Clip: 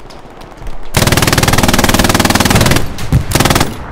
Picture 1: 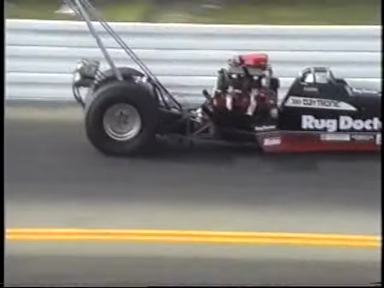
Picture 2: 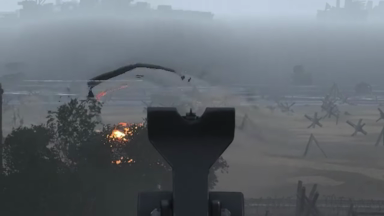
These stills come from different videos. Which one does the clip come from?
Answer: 2